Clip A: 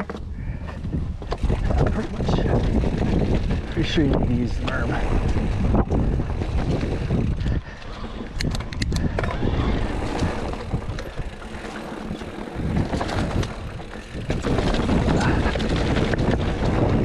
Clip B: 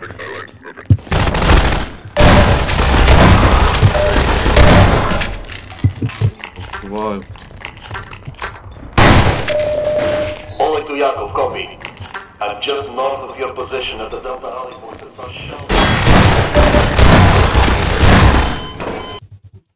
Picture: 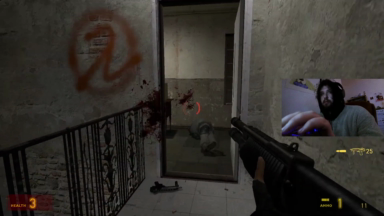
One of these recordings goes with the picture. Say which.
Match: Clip B